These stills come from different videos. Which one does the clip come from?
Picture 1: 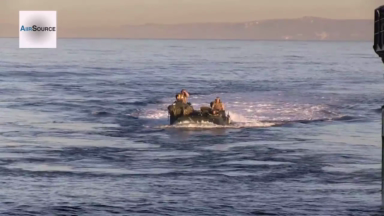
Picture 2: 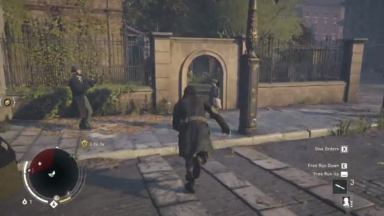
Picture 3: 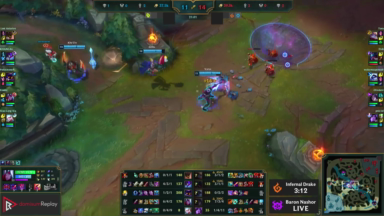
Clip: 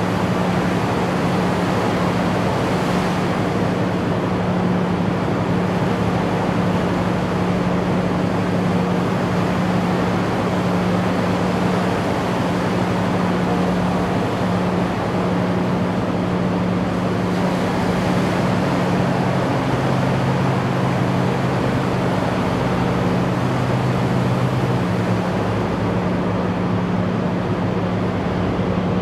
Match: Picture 1